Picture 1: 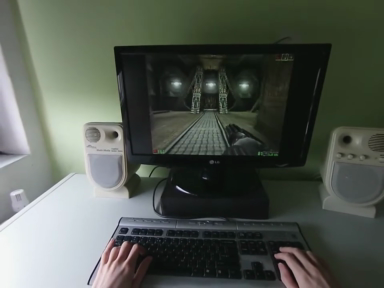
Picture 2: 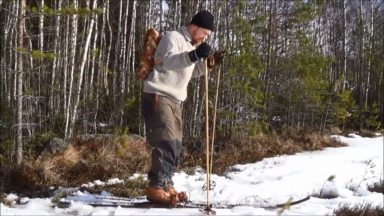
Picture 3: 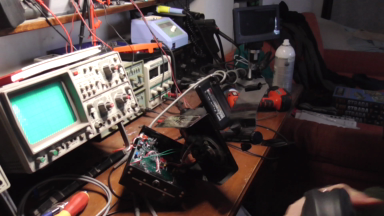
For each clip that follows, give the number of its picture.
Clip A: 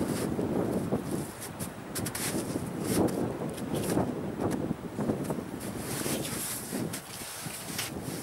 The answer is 2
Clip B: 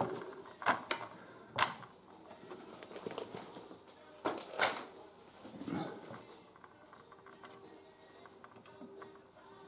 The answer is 3